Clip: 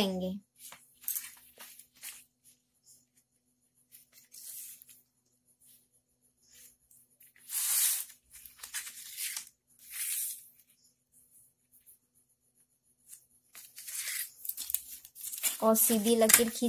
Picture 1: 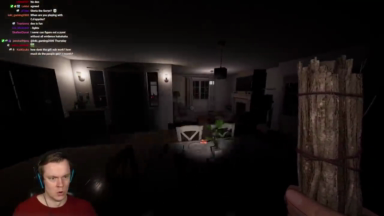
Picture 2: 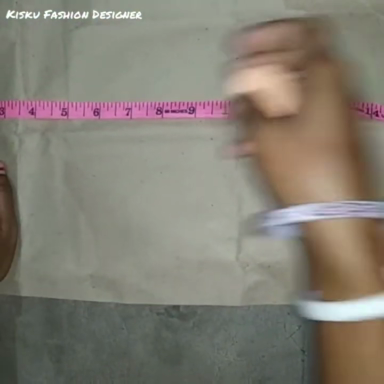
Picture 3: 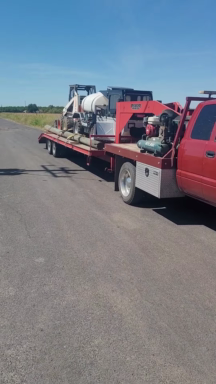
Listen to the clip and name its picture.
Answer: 2